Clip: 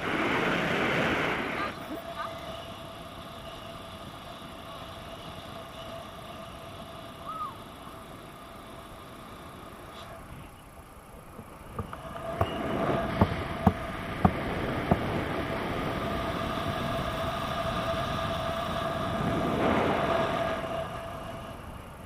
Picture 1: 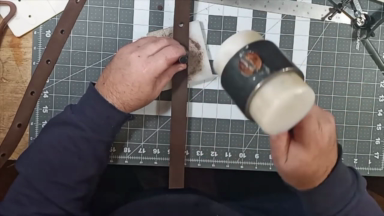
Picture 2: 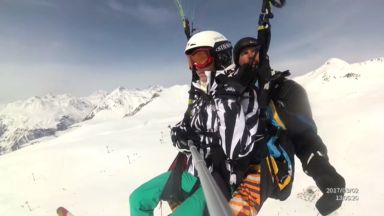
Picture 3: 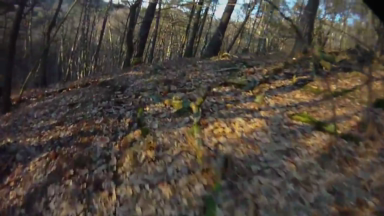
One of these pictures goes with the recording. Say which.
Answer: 2